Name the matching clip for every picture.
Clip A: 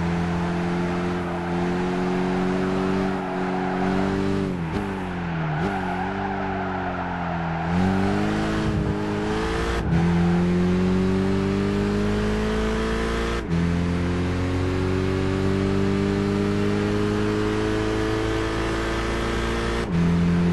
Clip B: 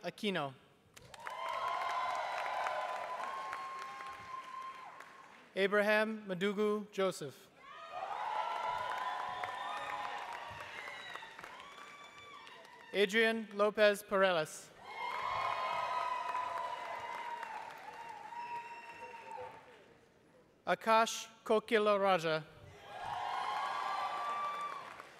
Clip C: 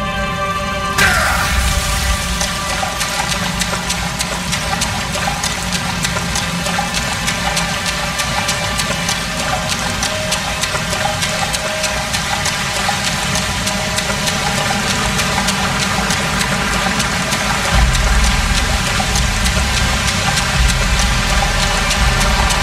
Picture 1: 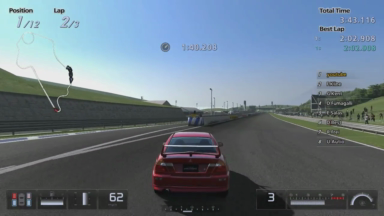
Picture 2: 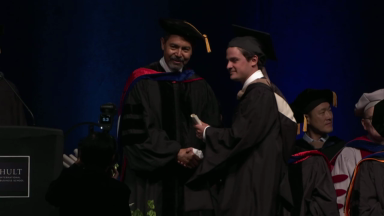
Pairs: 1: A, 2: B